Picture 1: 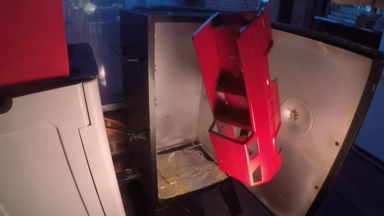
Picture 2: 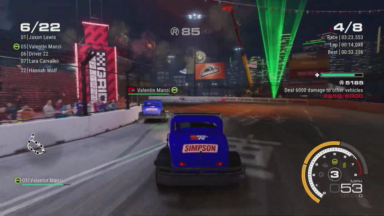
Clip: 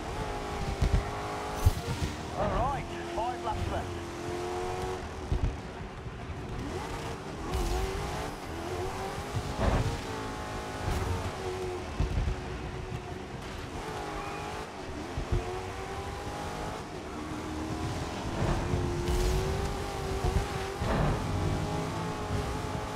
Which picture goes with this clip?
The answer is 2